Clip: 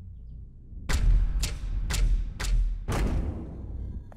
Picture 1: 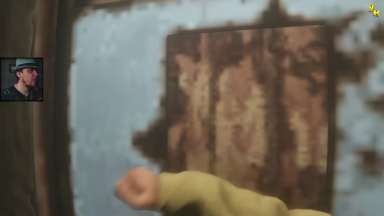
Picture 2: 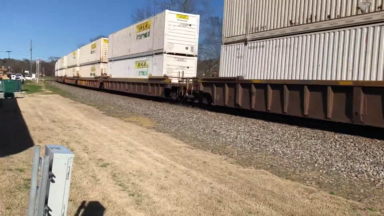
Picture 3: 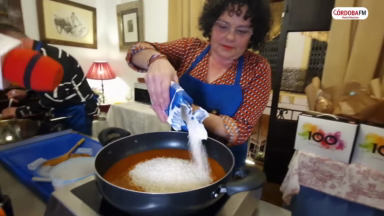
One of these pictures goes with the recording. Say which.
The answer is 1